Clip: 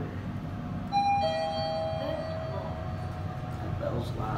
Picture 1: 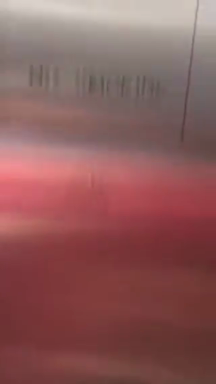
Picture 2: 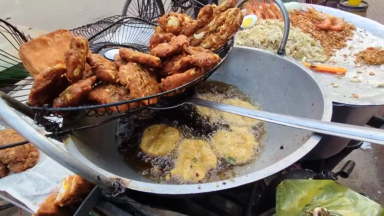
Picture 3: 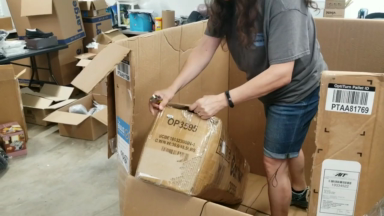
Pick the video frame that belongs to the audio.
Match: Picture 1